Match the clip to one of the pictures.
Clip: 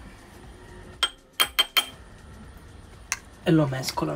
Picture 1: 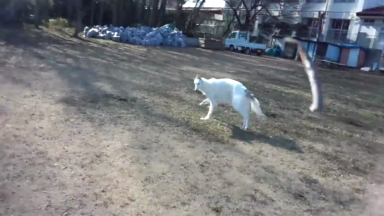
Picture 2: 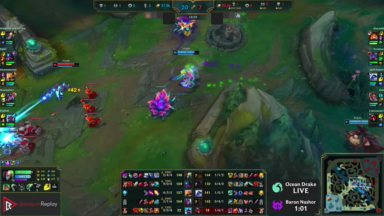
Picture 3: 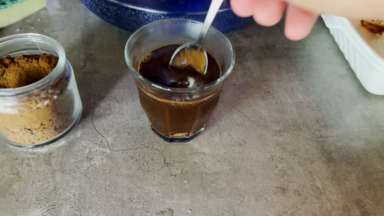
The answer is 3